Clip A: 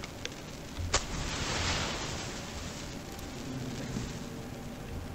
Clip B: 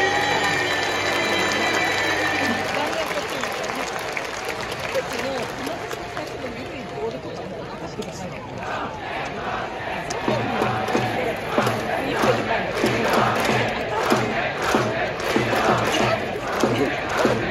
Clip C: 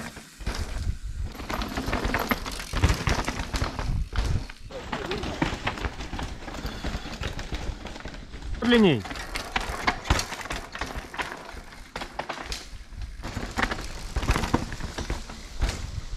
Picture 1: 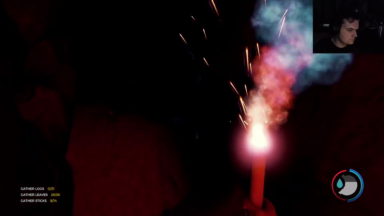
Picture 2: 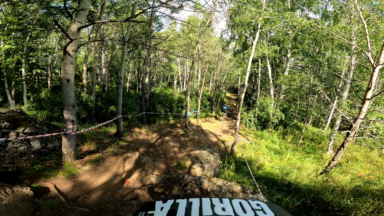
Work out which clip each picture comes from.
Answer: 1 A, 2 C